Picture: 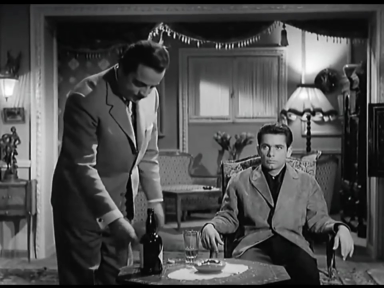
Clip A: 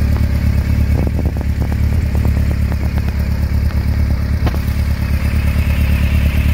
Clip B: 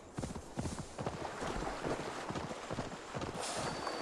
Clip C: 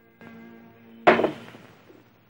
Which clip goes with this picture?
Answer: C